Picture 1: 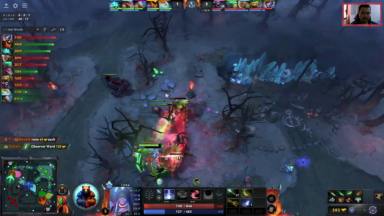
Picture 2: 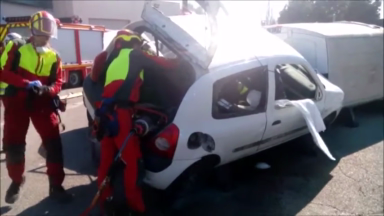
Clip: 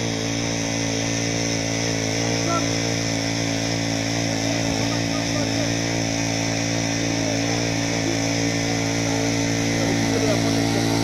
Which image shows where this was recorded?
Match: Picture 2